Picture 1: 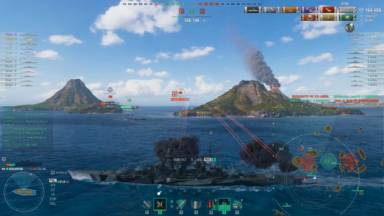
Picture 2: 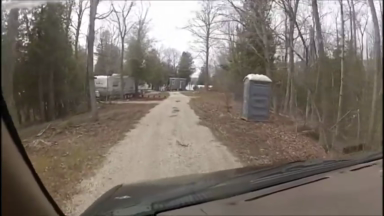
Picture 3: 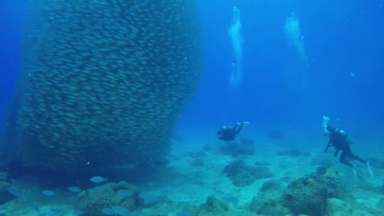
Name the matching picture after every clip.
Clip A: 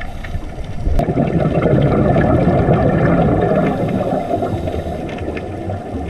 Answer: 3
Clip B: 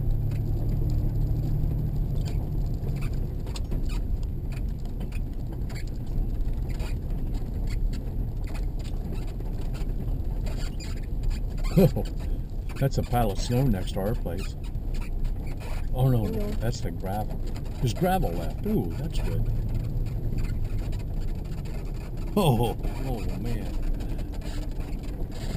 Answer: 2